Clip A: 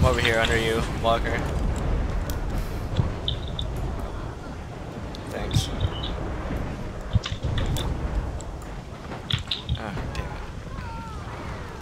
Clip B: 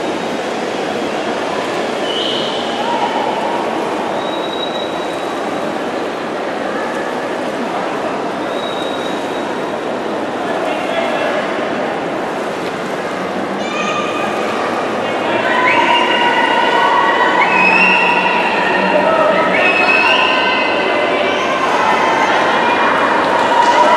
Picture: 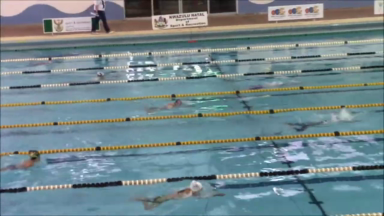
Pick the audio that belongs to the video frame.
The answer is B